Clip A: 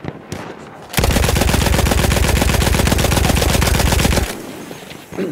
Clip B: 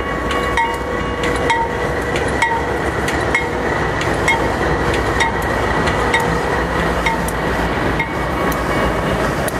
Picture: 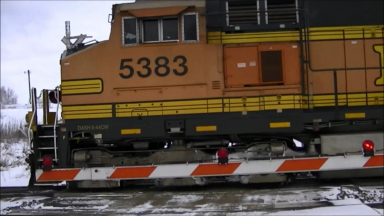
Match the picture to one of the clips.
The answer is B